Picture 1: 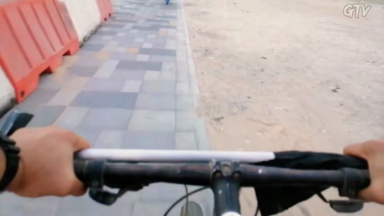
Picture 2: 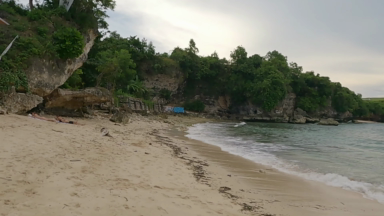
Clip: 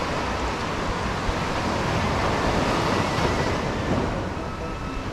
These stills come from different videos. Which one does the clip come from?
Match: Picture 2